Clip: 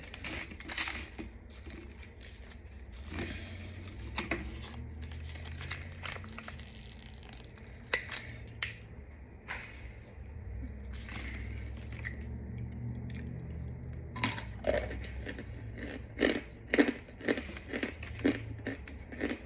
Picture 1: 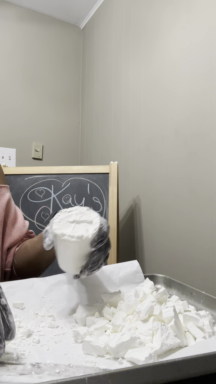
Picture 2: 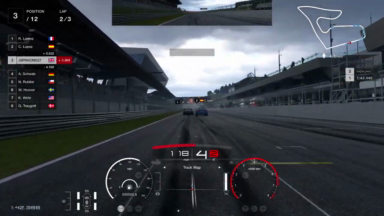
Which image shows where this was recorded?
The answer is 1